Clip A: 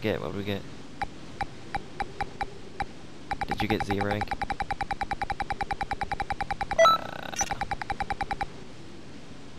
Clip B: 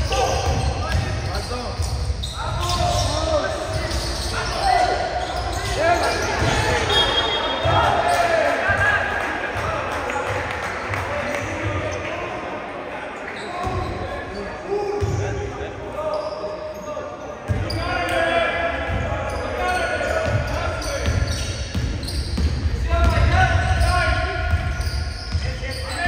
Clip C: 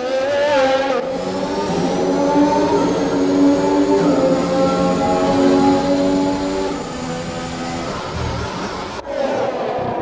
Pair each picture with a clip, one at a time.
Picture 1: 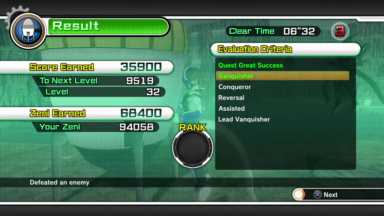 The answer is A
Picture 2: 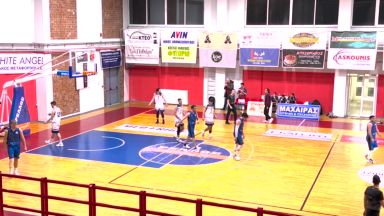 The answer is B